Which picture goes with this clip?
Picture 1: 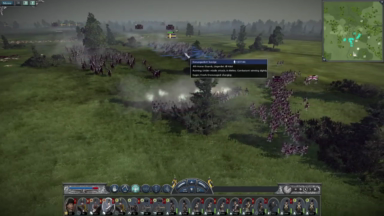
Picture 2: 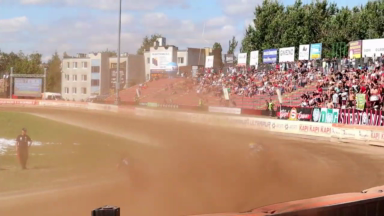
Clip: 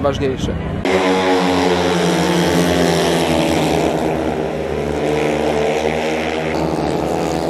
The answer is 2